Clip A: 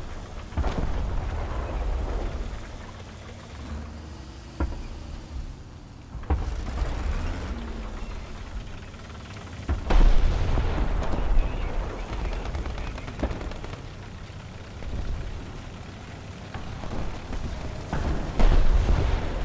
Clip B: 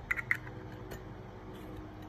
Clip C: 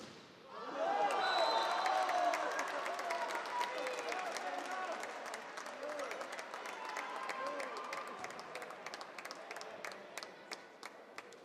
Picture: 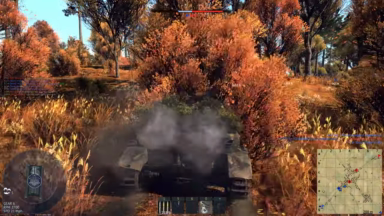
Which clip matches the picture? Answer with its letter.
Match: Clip A